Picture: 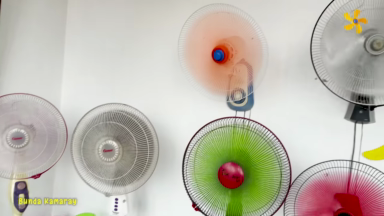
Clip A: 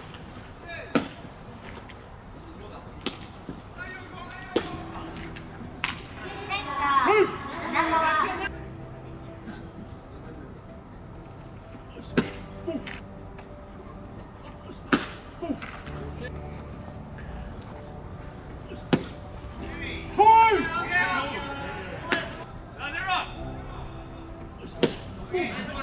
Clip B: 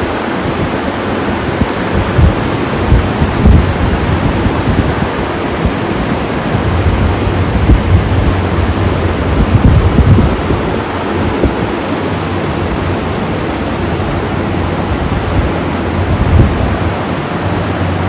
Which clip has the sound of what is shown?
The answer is B